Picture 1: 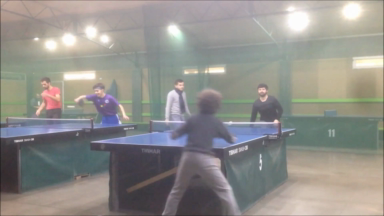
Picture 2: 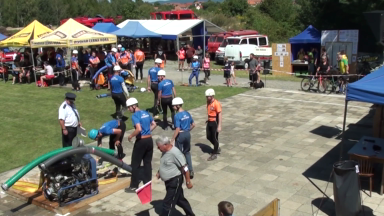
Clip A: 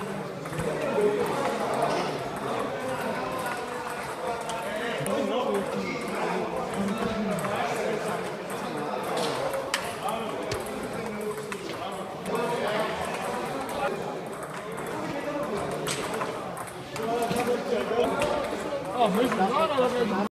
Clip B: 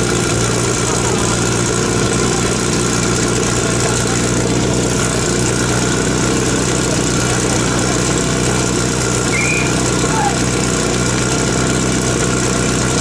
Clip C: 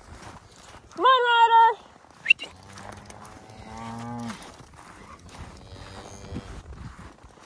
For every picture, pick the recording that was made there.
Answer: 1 A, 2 B